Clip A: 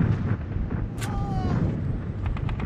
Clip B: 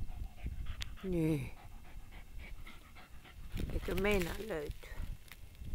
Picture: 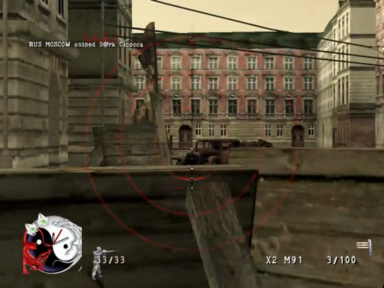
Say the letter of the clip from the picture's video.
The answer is A